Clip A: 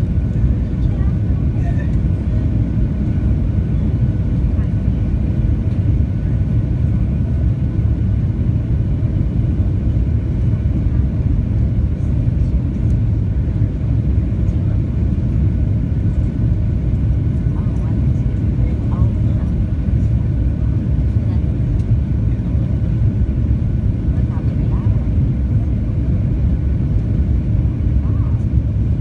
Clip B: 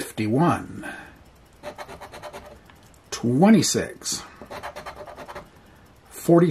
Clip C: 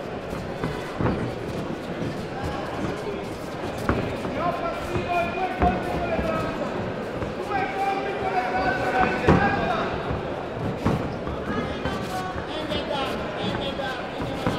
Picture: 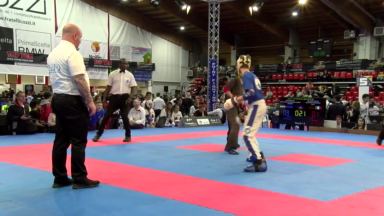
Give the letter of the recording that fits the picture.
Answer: C